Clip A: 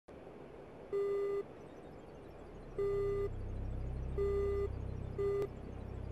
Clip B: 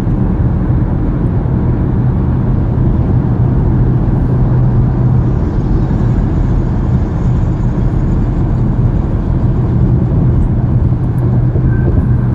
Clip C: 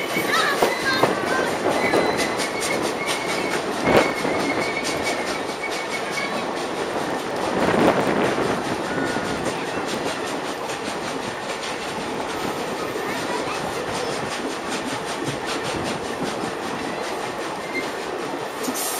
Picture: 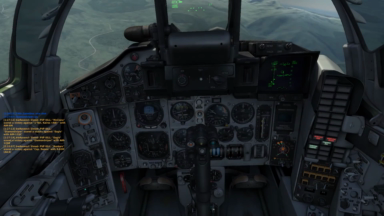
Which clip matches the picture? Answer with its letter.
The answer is A